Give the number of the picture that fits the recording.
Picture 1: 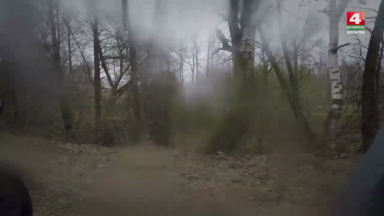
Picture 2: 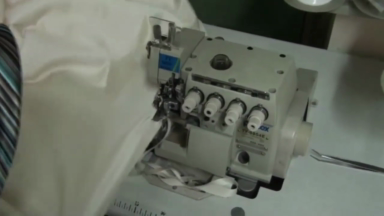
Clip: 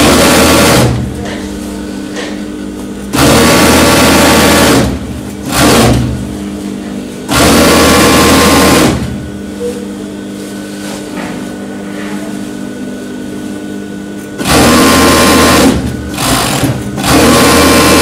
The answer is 2